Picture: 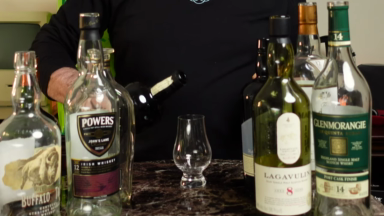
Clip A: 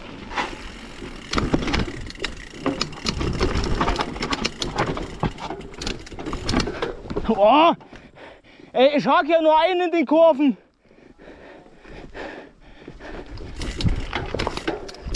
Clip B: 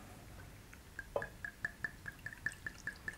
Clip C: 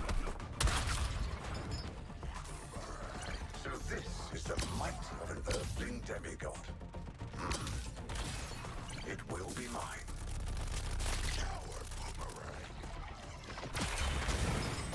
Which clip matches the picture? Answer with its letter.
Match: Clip B